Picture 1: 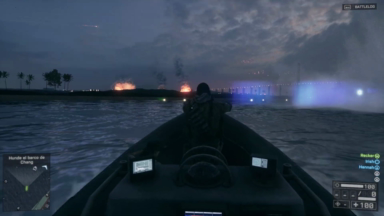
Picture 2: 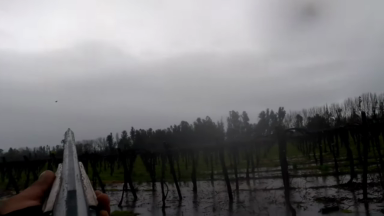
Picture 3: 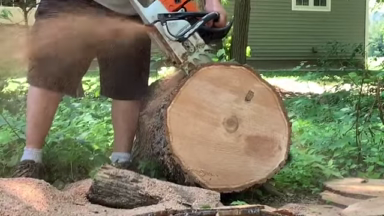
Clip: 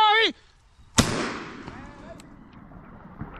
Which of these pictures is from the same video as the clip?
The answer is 2